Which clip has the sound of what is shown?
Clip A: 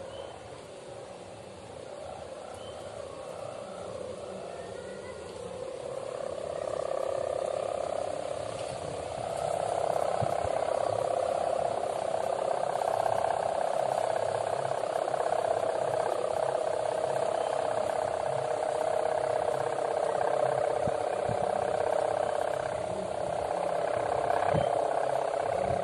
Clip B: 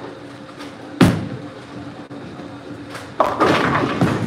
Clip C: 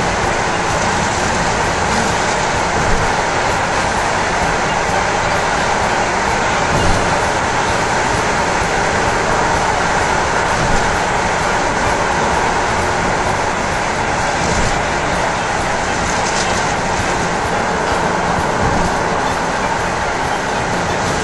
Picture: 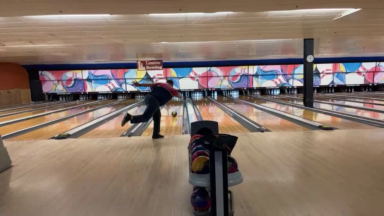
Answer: B